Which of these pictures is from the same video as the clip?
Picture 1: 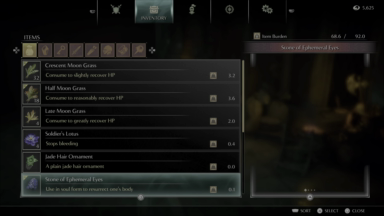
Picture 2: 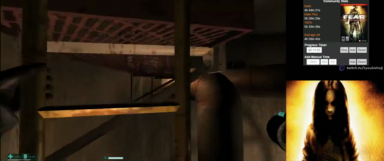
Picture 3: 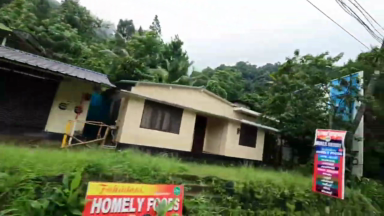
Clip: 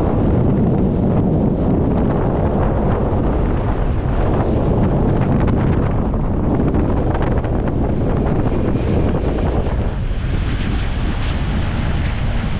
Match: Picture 3